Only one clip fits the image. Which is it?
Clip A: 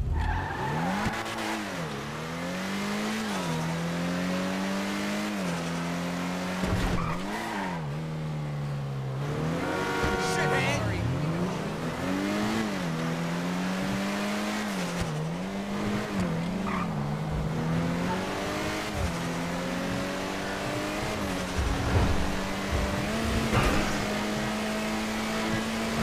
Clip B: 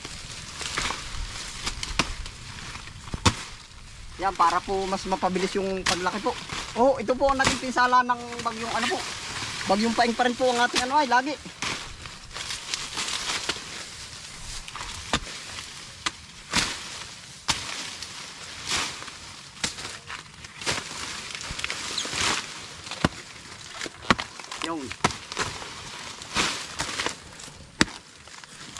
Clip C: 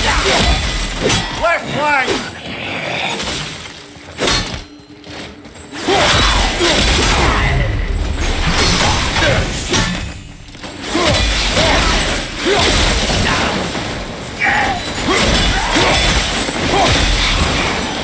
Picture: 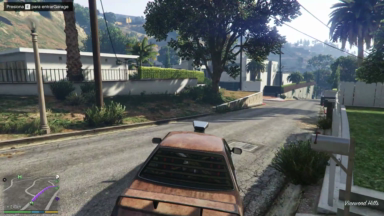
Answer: A